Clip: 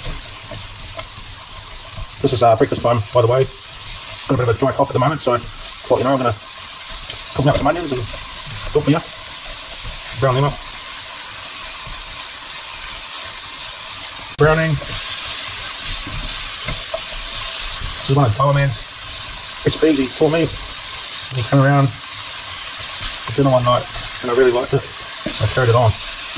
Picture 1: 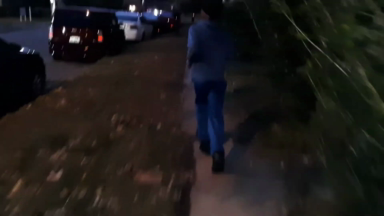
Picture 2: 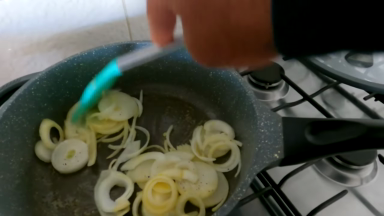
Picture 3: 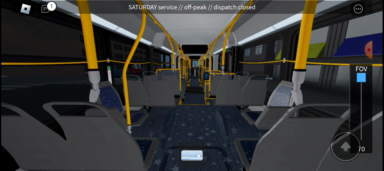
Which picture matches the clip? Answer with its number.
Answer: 2